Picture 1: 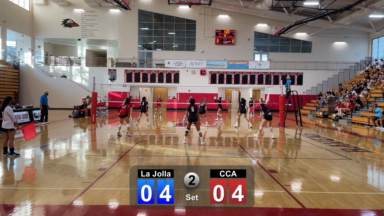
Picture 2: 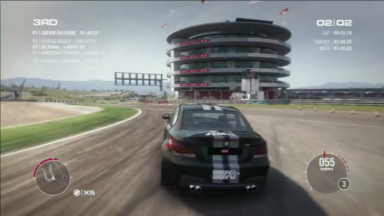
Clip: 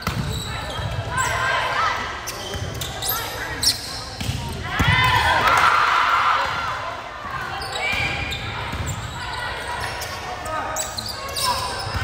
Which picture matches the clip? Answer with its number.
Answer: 1